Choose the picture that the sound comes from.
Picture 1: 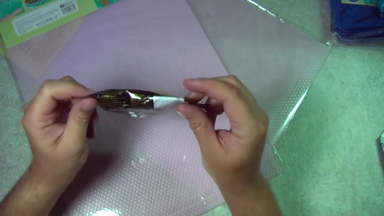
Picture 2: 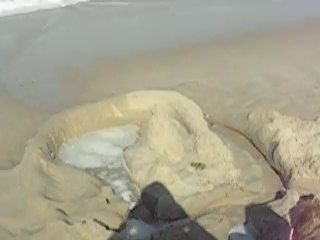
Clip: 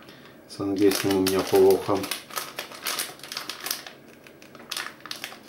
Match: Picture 1